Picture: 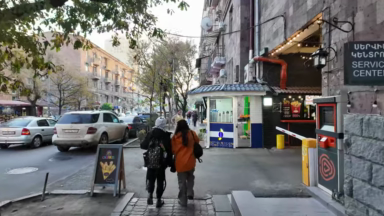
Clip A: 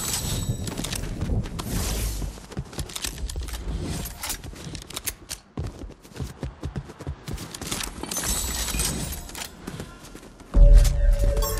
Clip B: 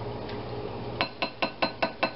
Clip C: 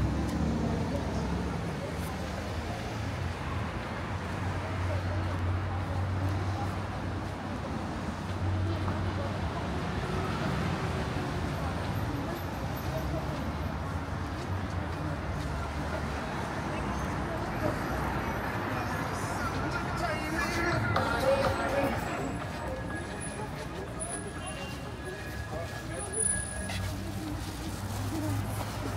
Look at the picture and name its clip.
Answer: C